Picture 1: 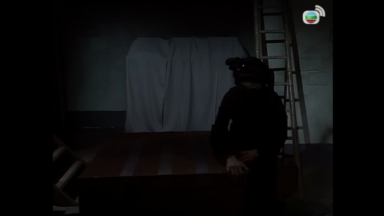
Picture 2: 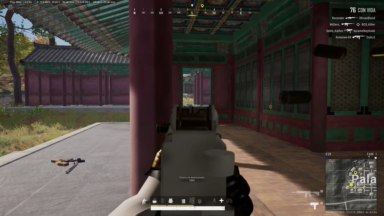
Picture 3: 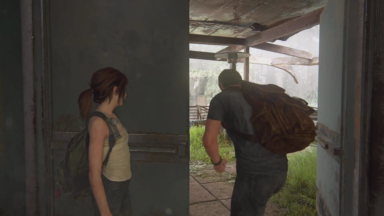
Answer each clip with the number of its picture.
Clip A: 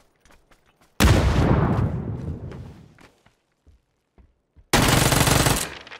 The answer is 2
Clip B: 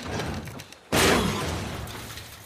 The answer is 3